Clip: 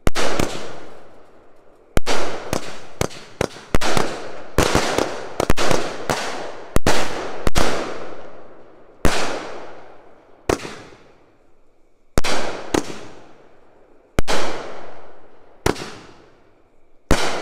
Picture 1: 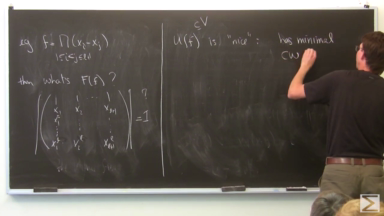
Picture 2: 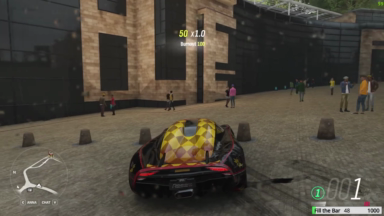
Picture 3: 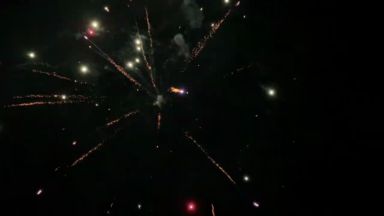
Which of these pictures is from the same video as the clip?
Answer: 3